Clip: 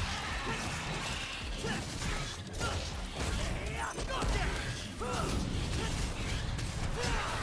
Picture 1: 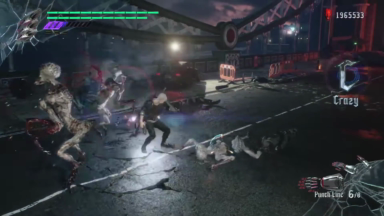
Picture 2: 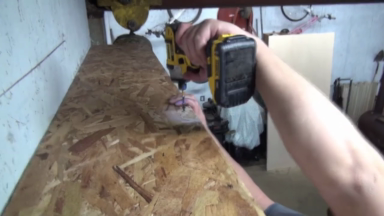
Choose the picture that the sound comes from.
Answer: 1